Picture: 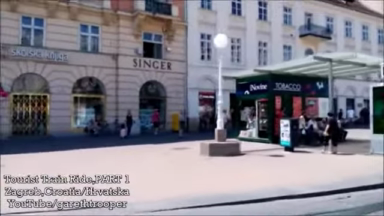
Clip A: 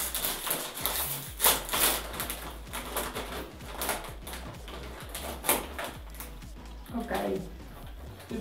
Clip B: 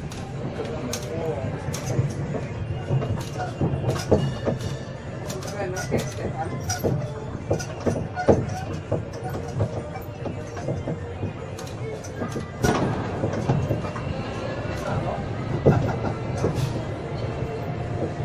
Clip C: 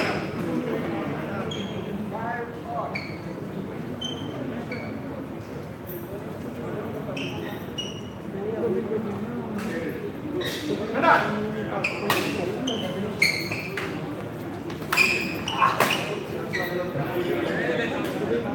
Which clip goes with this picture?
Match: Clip B